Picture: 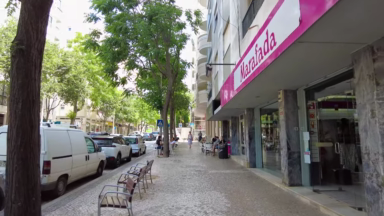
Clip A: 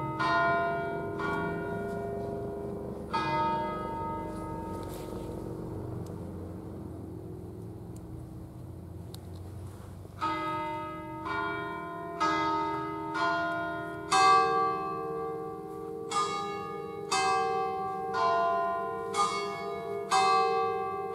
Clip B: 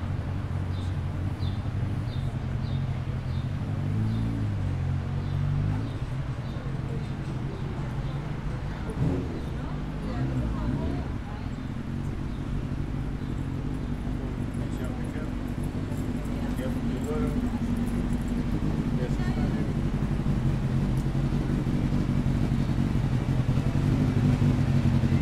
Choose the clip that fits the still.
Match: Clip B